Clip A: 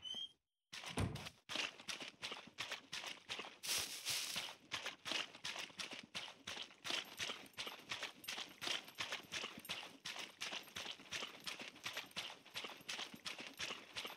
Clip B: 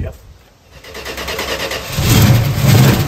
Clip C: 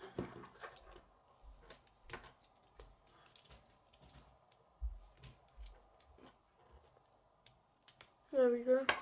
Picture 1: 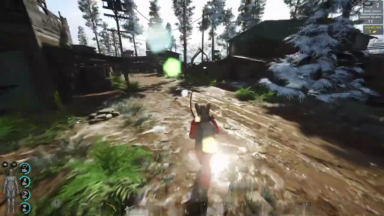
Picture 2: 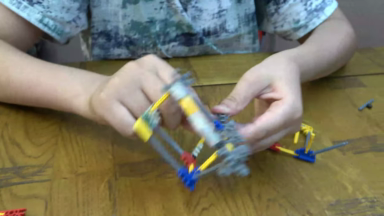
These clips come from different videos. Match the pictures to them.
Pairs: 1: A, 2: C